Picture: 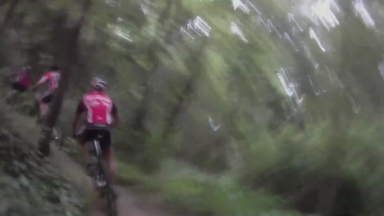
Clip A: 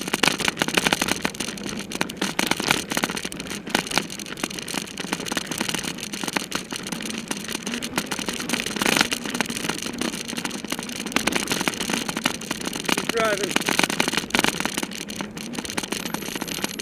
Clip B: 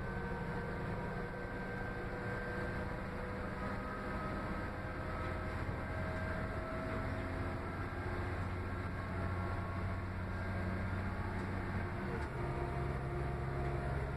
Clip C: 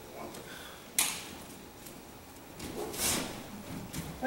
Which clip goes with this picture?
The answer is A